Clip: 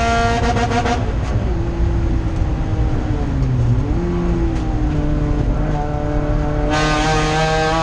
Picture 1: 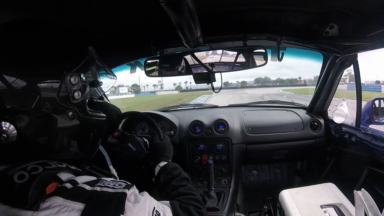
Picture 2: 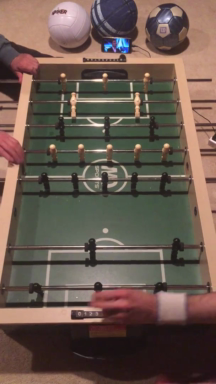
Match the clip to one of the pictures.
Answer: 1